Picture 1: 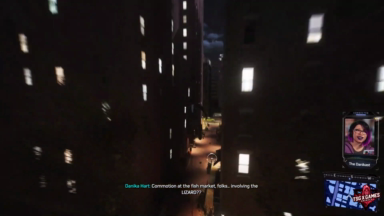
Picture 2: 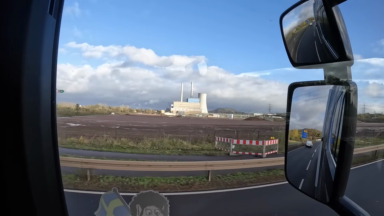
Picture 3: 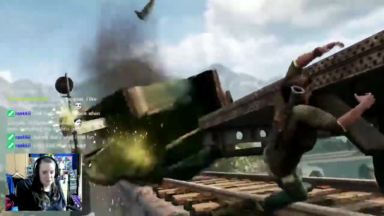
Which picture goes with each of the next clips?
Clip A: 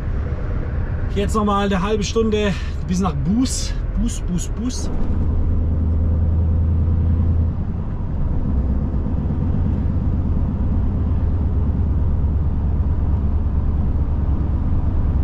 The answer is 2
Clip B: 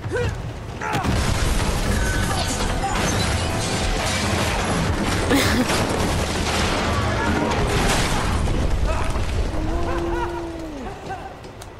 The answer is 3